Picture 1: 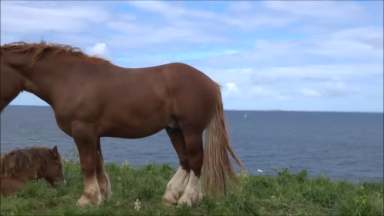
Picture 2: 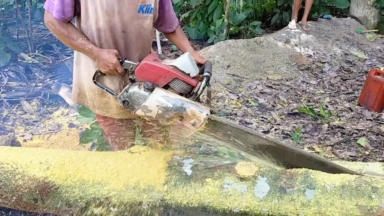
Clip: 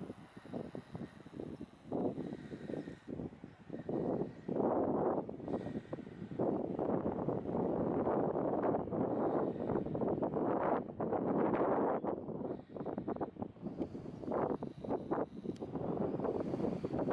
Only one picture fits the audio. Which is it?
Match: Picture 1